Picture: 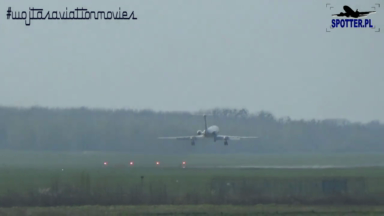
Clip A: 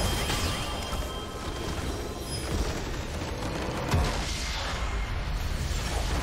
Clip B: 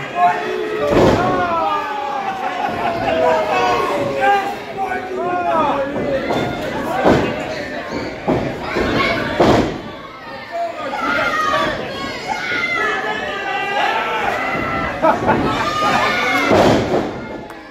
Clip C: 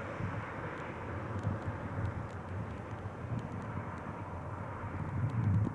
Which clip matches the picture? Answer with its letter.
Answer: C